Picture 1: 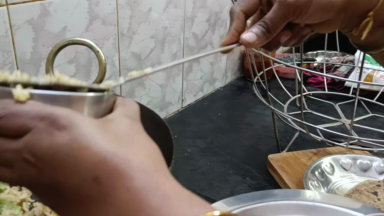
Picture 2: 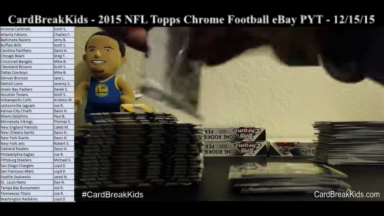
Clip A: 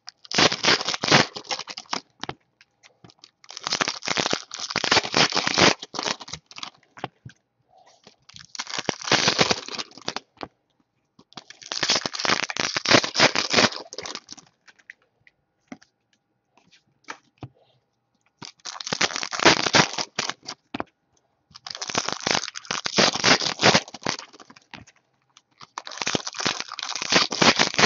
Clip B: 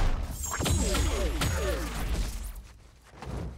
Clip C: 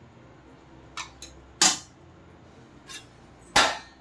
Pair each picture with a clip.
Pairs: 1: C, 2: A